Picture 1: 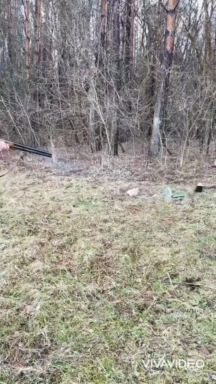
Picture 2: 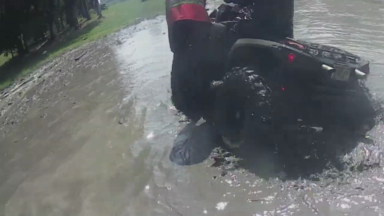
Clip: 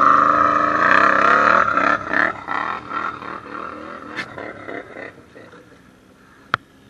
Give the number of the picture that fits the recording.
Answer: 2